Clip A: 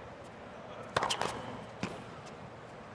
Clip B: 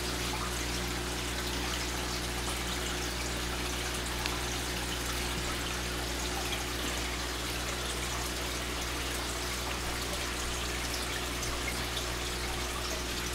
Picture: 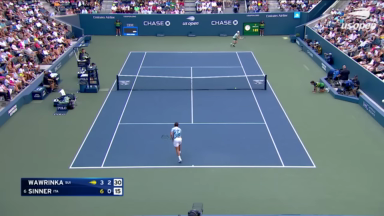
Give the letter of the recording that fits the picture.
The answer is A